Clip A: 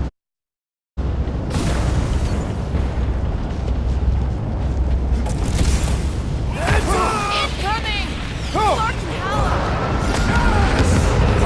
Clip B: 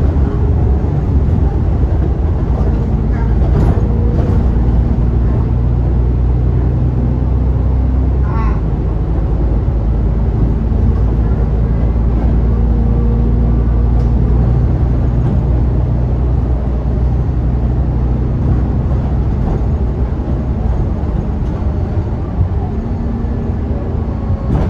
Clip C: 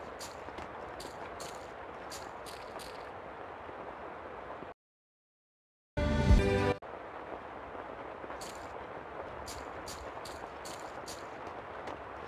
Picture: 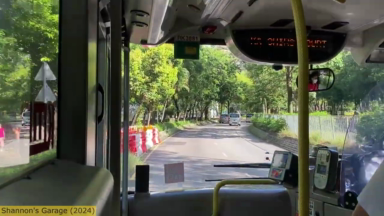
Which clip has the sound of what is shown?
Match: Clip B